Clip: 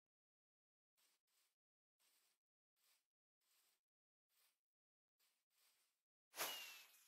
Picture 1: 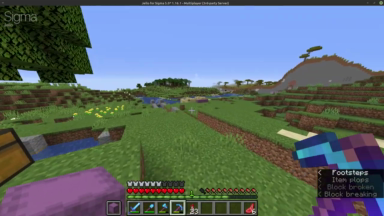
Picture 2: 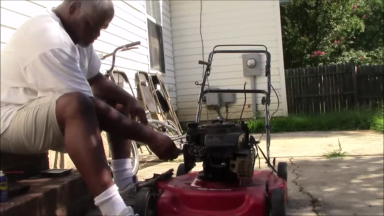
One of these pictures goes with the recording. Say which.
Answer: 1